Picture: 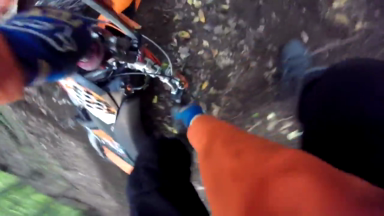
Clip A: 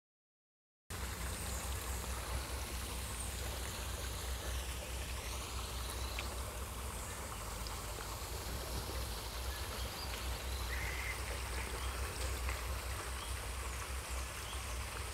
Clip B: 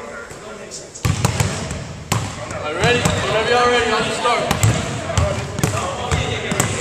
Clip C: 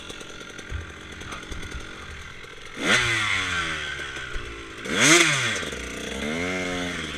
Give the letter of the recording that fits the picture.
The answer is C